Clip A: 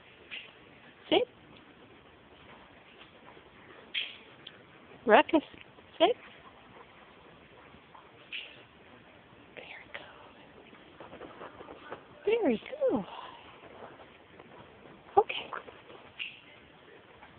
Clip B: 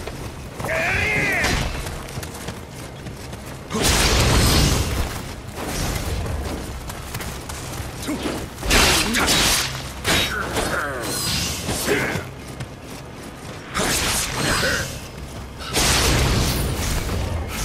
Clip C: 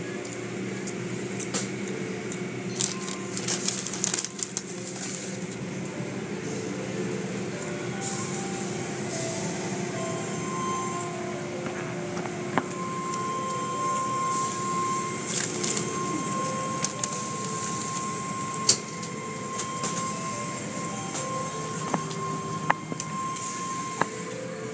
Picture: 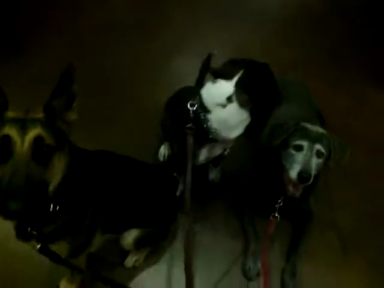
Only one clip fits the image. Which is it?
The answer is A